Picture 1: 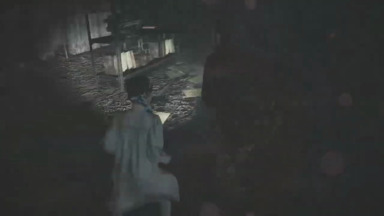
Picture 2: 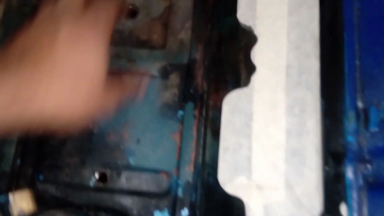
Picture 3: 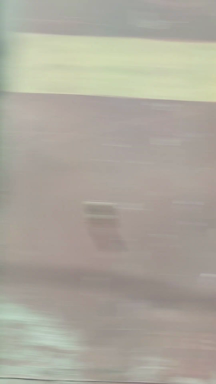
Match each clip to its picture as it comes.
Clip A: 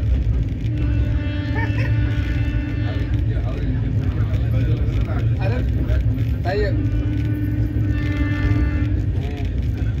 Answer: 3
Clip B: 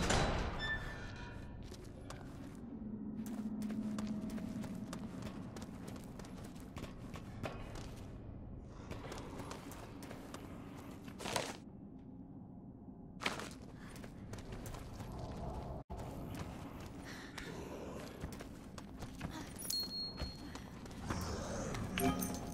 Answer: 1